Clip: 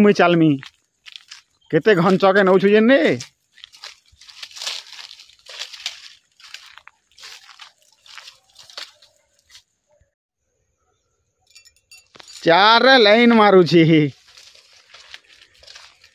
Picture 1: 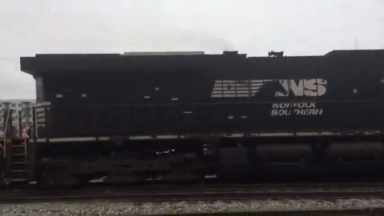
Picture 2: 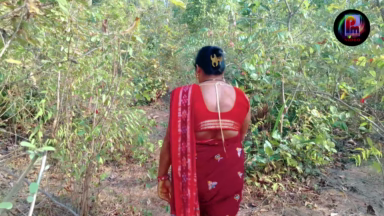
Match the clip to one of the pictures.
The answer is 2